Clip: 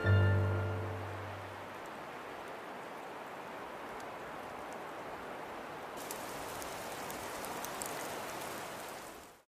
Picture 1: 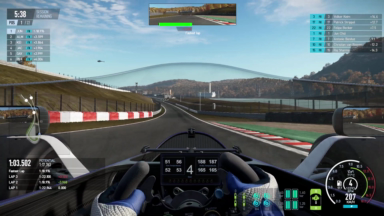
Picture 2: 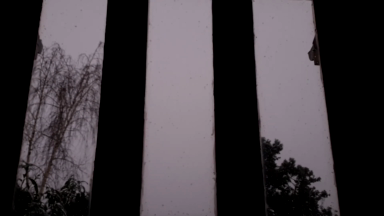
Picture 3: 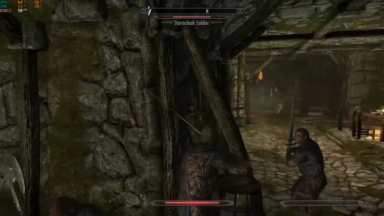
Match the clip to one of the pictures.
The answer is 2